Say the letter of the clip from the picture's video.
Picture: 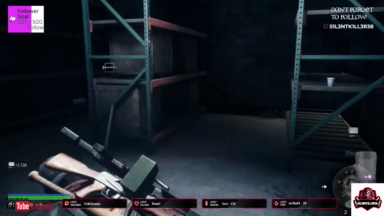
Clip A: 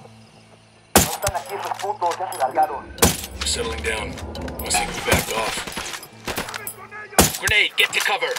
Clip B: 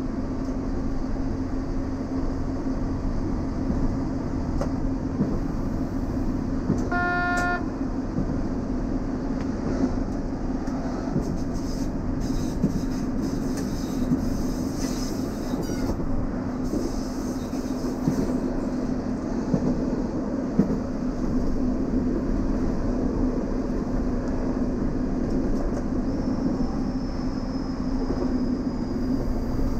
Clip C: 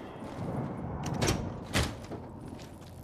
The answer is C